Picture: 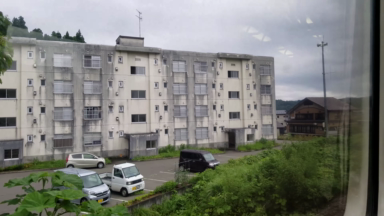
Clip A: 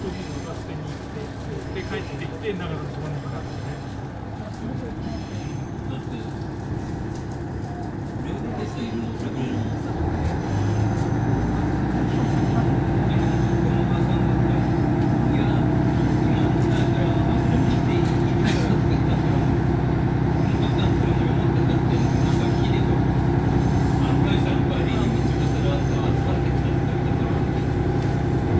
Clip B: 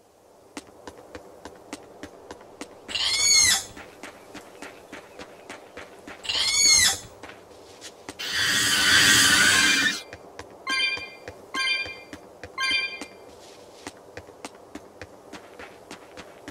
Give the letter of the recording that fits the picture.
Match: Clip A